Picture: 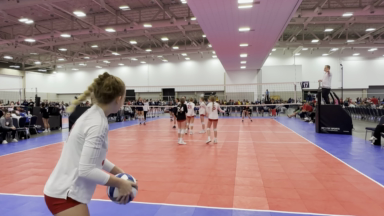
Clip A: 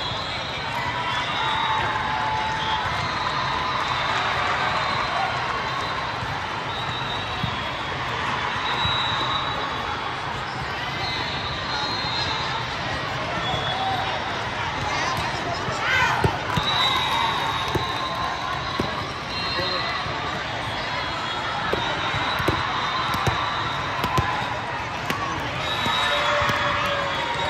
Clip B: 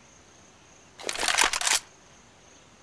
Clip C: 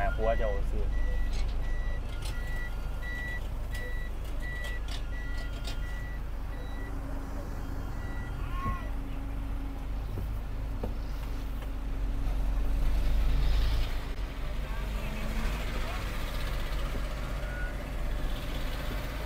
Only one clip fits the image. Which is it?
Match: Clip A